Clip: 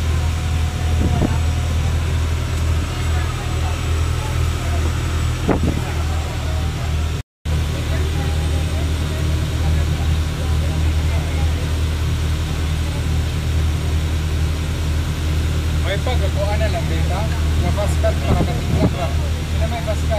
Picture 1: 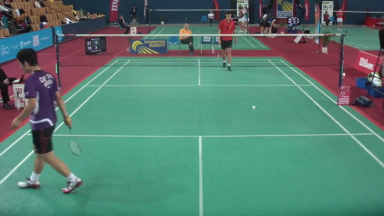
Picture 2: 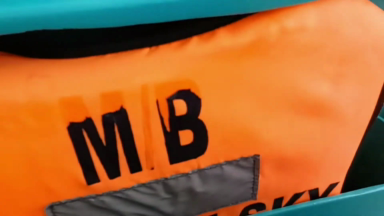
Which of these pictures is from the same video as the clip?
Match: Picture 2